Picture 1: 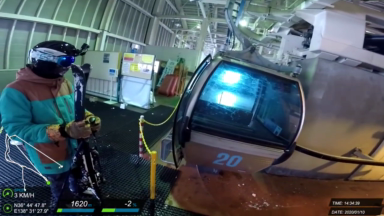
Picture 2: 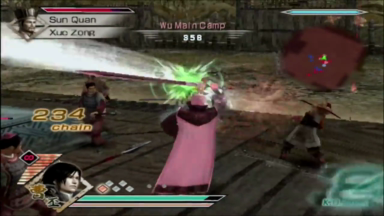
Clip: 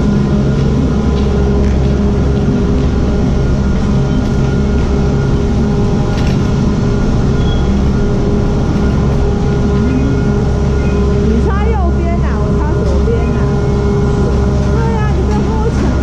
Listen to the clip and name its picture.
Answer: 1